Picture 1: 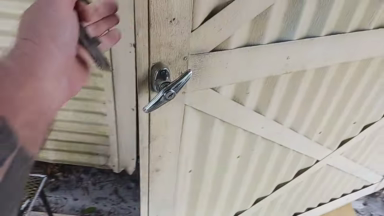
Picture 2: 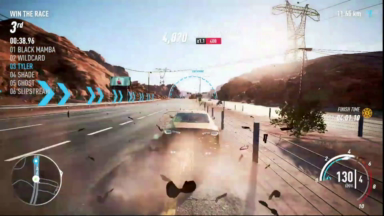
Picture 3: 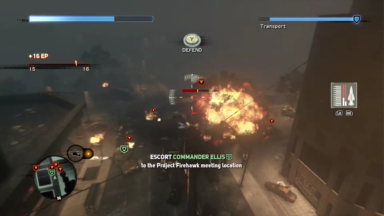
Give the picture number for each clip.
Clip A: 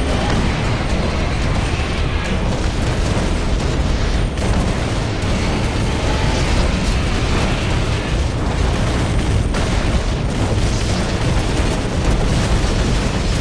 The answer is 3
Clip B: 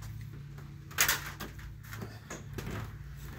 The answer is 1